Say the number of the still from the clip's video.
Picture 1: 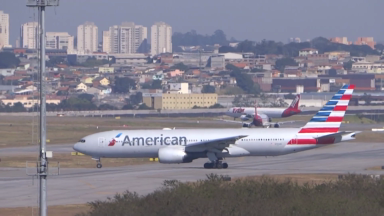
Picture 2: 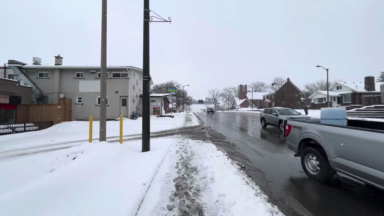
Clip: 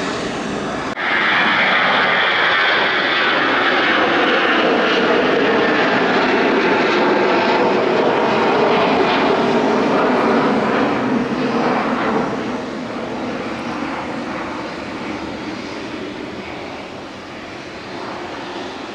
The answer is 1